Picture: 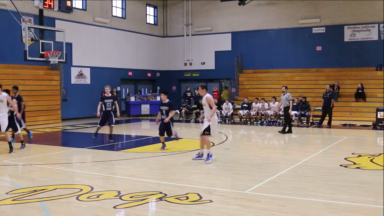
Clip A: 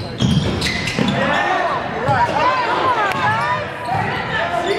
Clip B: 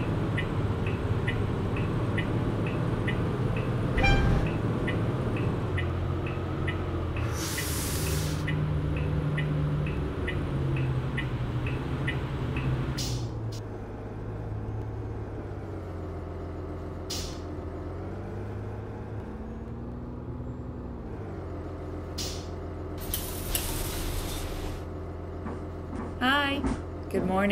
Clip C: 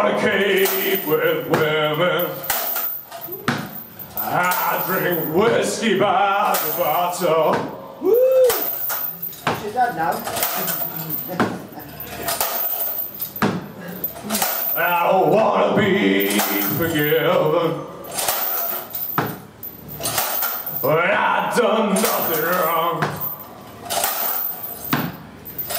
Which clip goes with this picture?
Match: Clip A